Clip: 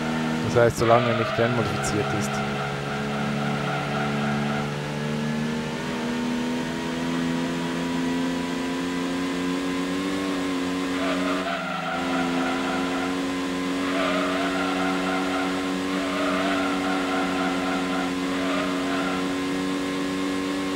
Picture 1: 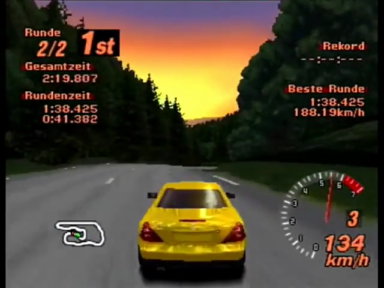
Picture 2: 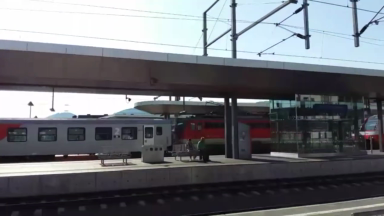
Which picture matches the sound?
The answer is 1